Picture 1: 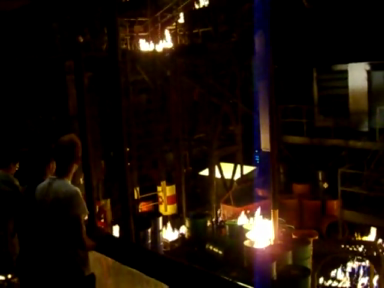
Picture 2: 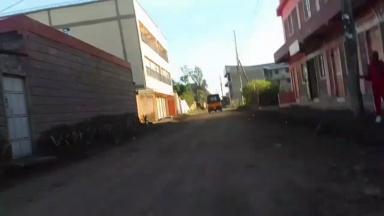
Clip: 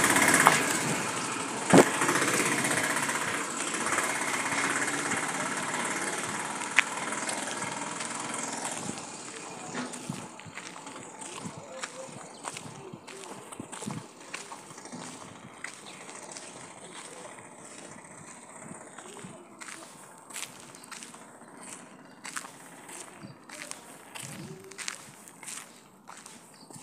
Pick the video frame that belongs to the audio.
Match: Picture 2